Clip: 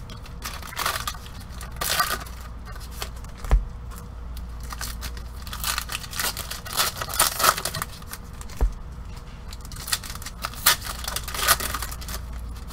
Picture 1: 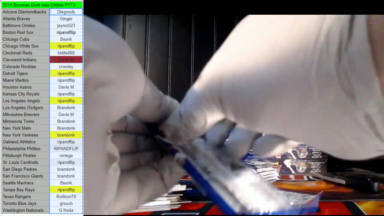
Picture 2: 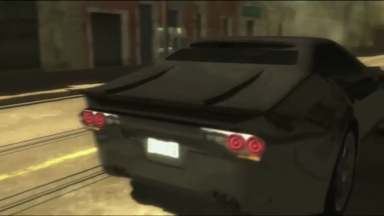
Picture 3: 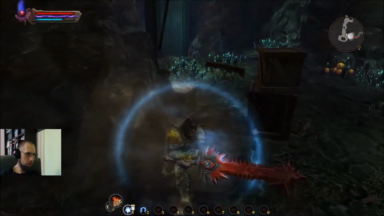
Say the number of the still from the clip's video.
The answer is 1